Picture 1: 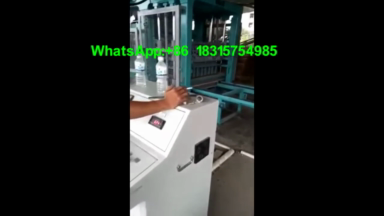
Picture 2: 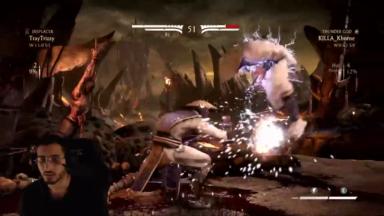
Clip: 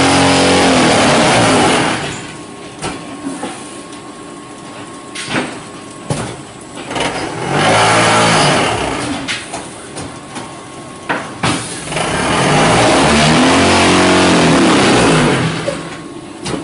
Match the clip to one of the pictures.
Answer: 1